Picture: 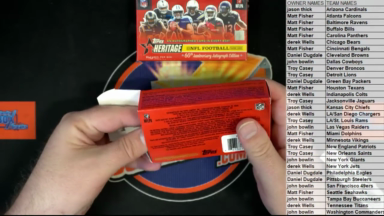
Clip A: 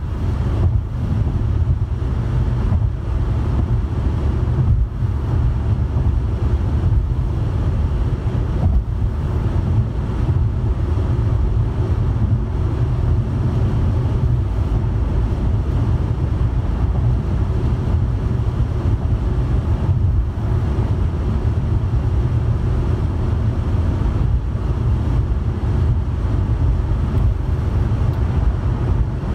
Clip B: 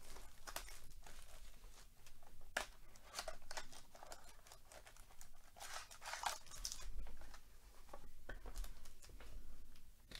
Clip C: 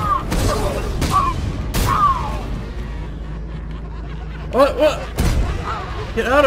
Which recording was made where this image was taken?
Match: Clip B